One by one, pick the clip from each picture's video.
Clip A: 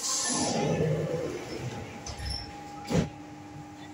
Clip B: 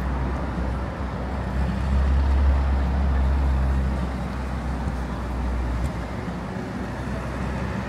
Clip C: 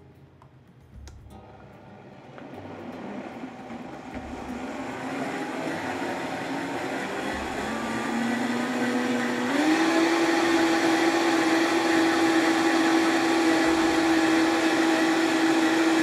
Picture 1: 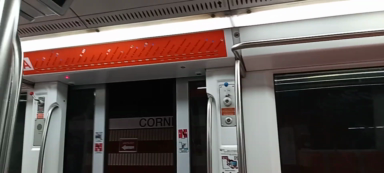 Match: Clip A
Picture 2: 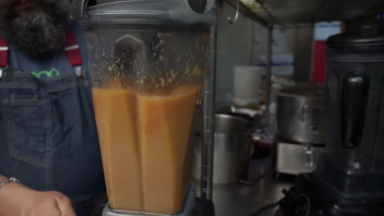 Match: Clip C